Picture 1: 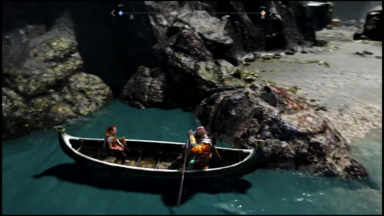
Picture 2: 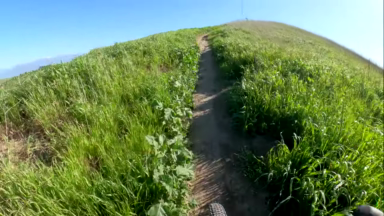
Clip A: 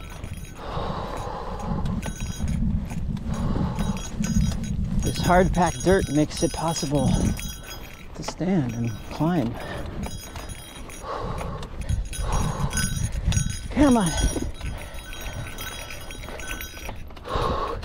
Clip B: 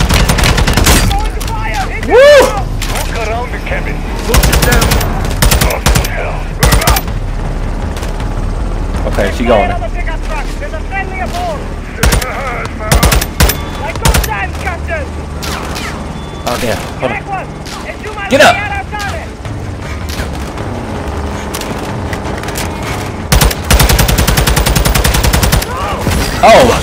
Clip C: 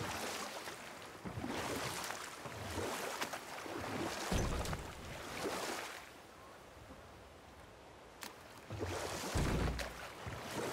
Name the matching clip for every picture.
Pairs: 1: C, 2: A